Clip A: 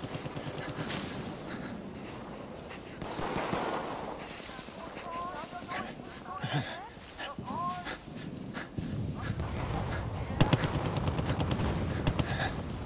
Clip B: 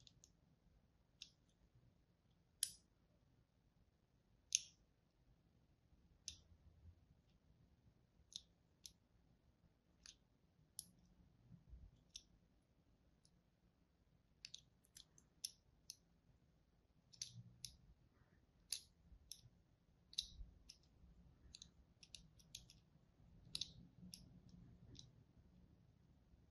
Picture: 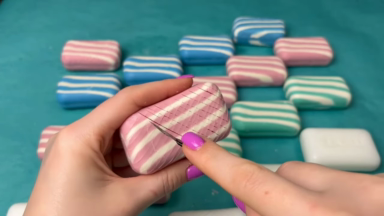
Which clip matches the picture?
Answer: B